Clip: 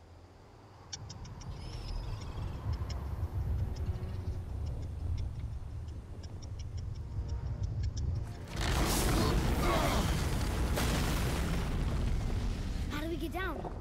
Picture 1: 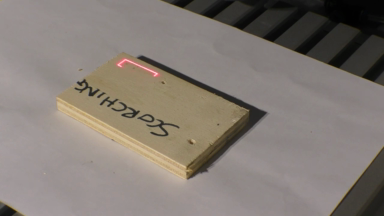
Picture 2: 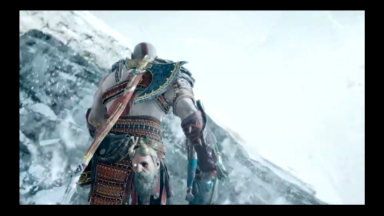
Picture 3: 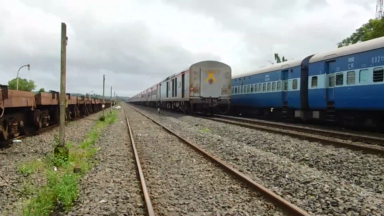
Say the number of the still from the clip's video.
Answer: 2